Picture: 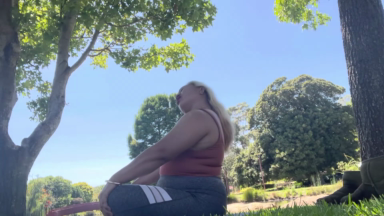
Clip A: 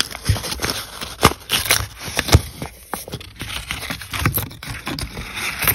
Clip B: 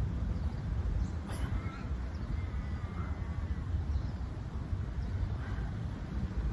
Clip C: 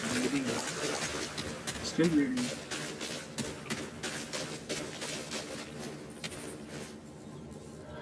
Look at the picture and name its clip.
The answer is B